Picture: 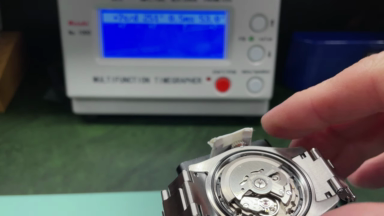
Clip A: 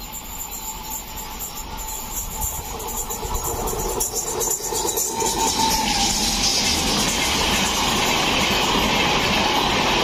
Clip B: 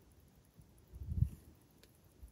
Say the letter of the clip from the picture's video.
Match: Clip B